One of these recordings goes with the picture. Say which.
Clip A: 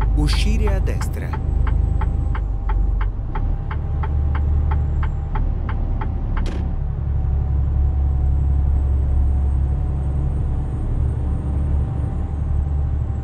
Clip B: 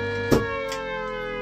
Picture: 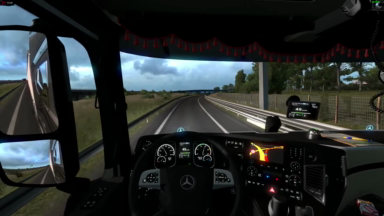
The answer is A